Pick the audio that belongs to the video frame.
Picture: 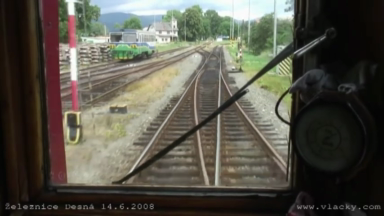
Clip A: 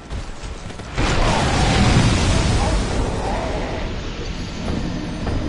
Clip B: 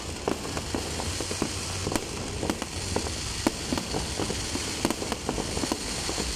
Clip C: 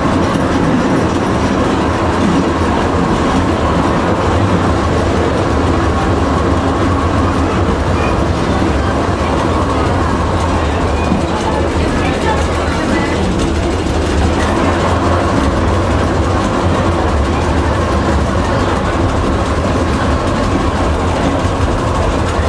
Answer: C